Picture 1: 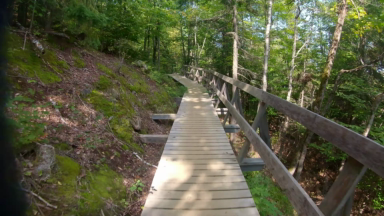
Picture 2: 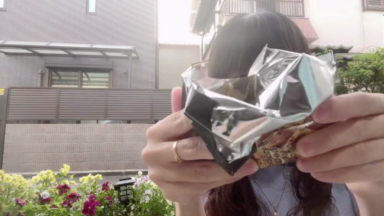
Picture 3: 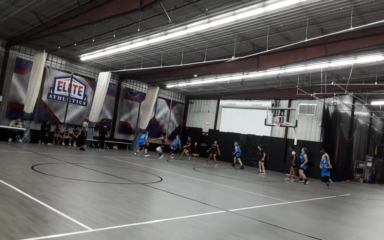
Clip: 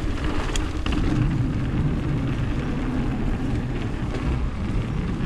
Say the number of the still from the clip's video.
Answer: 1